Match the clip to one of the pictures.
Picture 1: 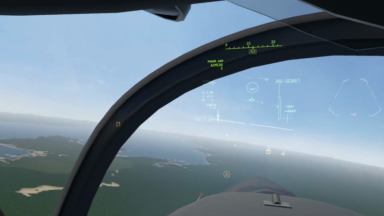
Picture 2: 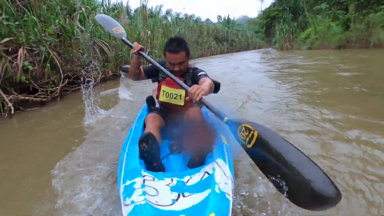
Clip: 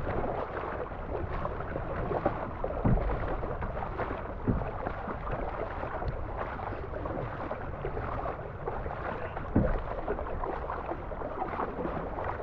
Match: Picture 2